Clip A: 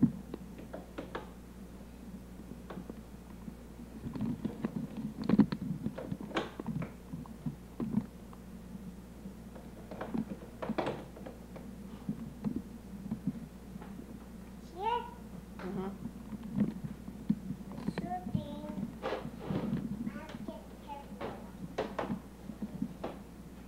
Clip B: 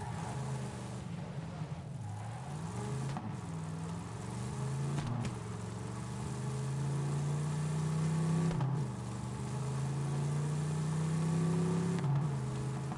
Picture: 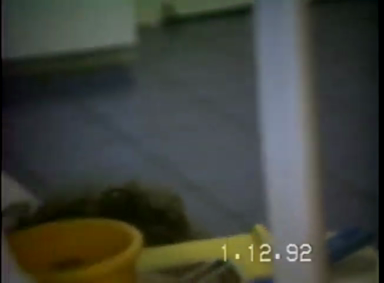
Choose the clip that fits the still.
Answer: A